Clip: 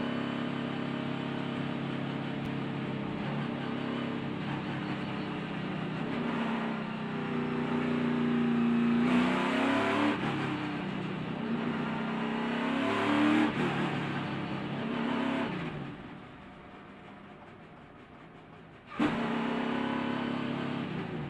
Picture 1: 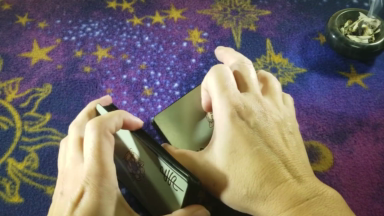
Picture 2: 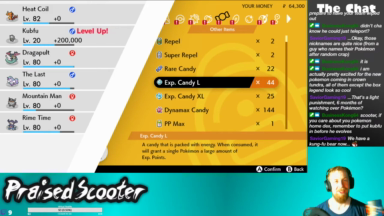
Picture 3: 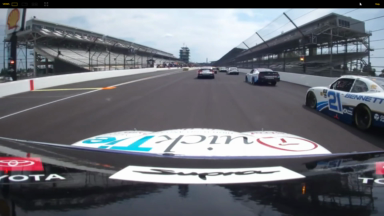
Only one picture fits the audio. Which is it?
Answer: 3